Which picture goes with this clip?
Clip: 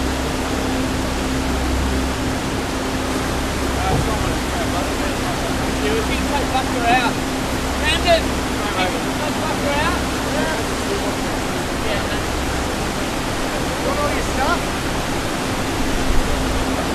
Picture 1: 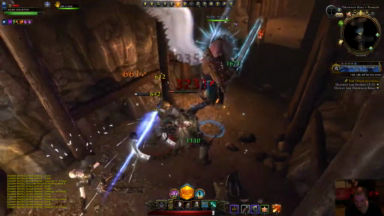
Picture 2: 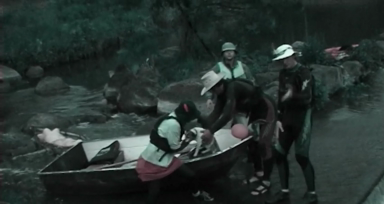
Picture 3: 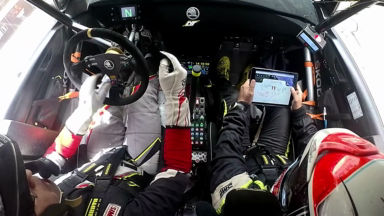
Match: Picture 2